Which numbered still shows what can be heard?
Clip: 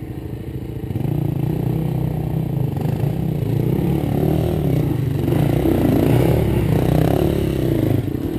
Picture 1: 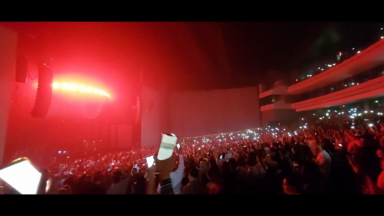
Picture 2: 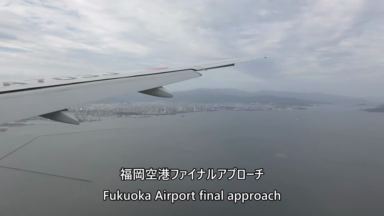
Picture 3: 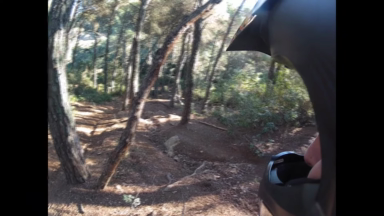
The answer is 3